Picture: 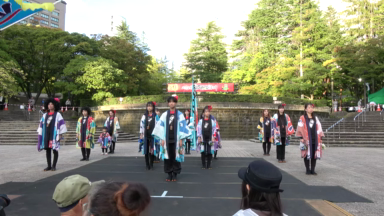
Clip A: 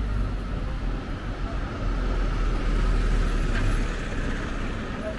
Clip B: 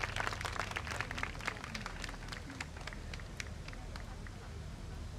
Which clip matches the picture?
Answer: B